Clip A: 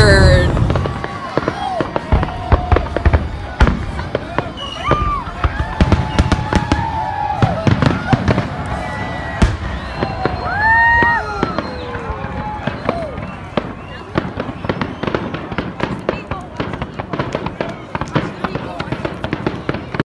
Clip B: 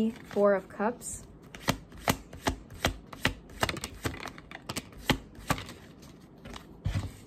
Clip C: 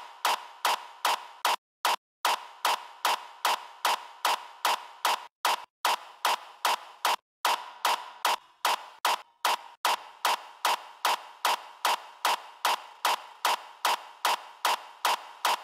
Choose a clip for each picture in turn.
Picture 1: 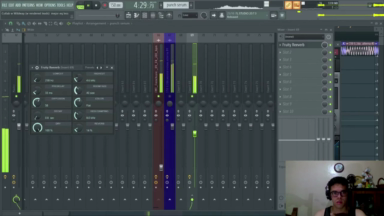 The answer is C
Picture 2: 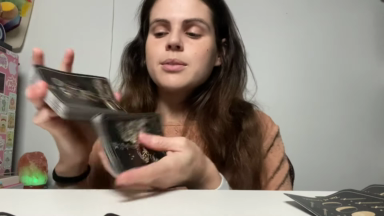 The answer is B